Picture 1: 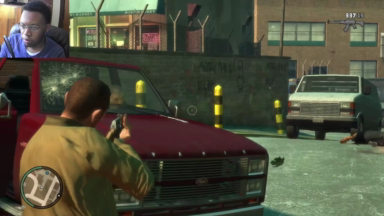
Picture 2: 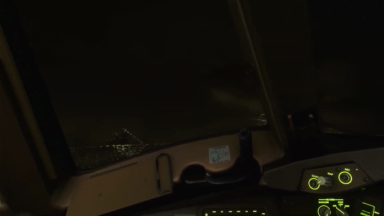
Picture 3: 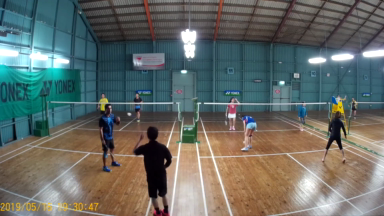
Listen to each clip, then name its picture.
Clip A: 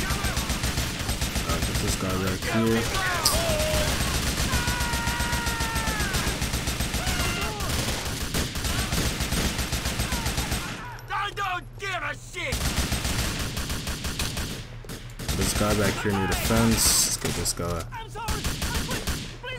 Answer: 1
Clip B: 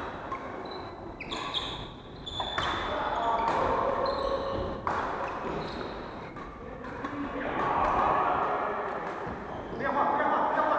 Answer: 3